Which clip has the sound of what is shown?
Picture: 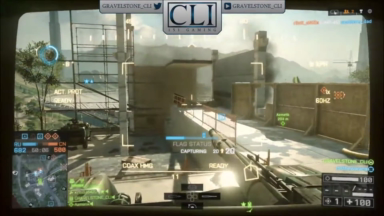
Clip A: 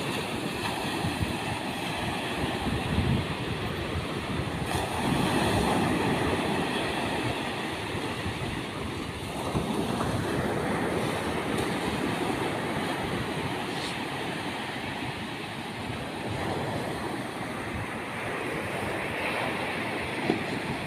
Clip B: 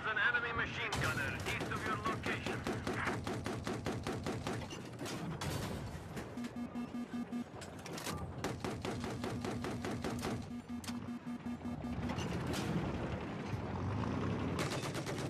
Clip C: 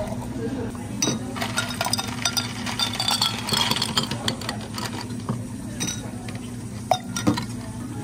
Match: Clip B